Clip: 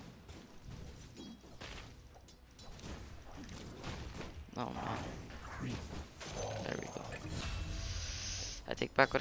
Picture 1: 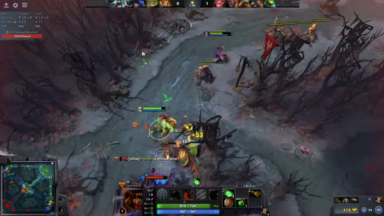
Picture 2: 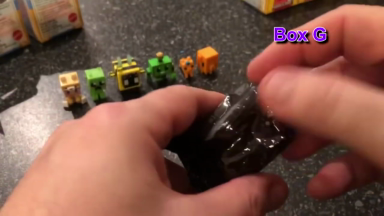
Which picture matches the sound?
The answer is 1